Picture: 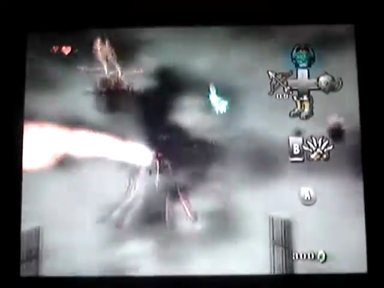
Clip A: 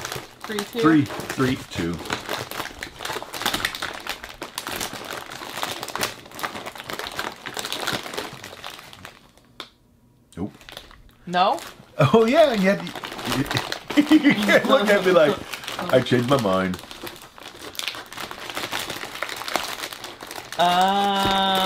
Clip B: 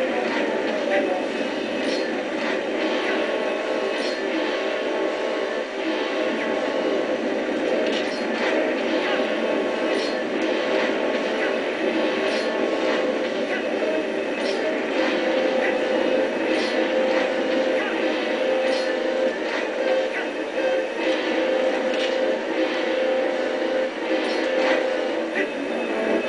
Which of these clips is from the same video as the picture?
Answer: B